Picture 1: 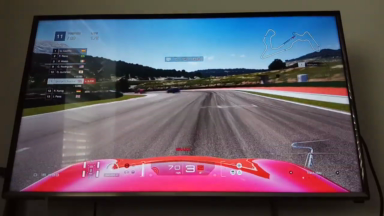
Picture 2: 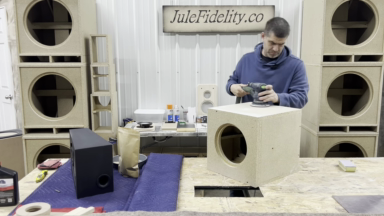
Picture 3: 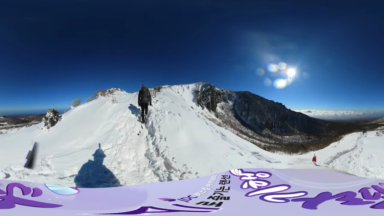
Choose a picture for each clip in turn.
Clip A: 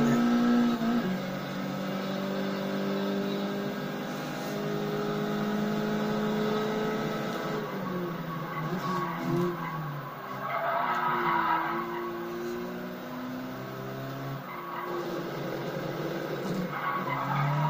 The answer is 1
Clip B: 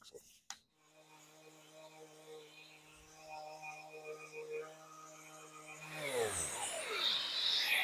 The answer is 2